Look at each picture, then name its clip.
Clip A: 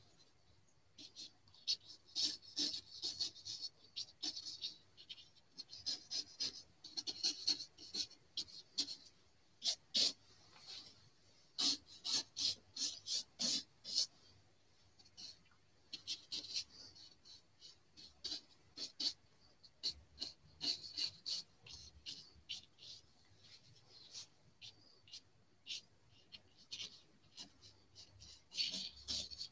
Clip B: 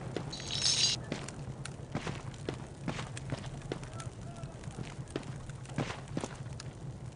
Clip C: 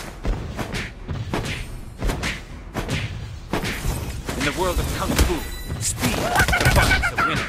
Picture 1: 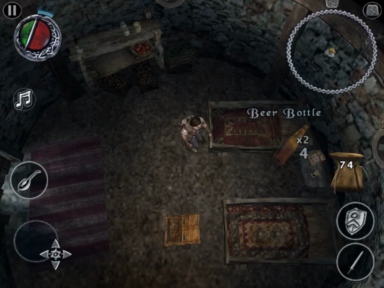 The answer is B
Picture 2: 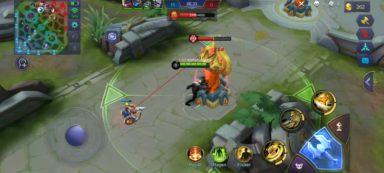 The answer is C